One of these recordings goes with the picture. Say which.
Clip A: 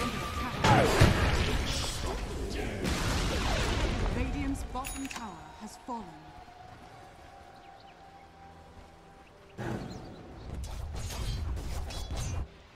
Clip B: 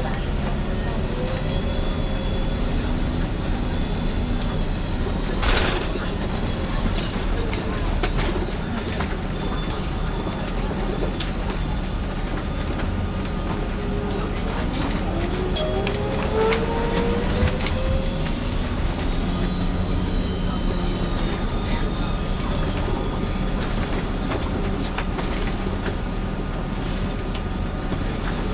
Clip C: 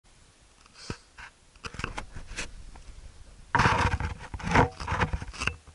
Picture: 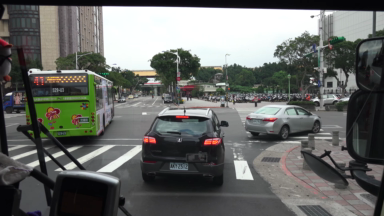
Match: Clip B